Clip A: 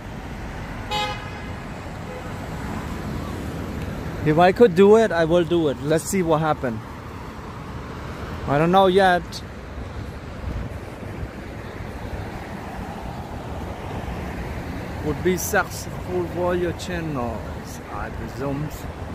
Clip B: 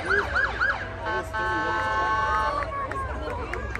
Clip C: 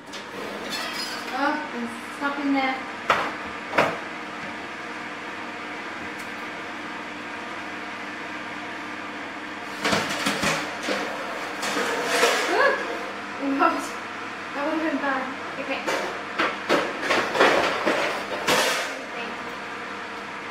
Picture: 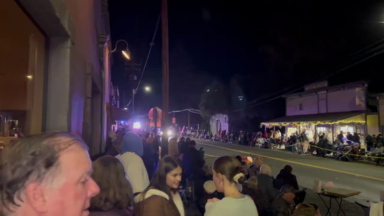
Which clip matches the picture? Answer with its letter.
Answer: B